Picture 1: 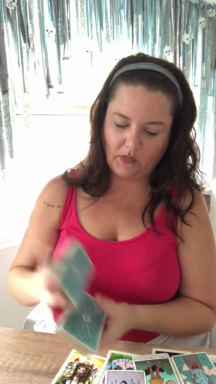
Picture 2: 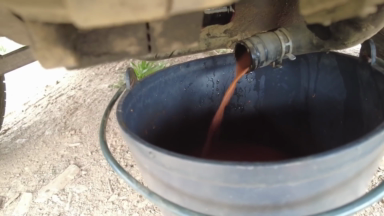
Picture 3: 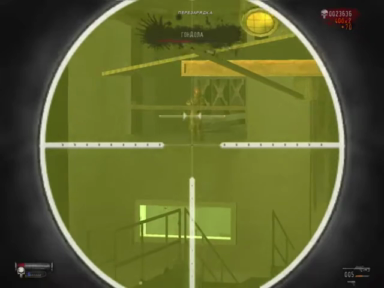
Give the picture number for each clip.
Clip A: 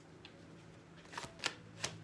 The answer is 1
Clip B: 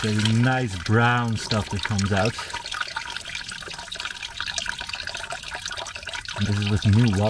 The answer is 2